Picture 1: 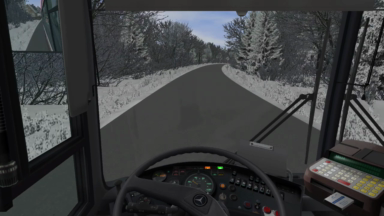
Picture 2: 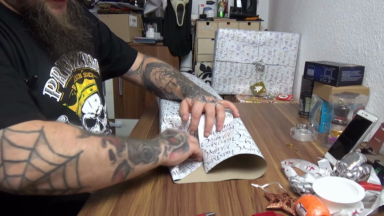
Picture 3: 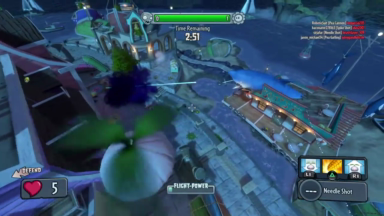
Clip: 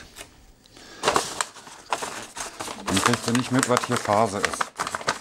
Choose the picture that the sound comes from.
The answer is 2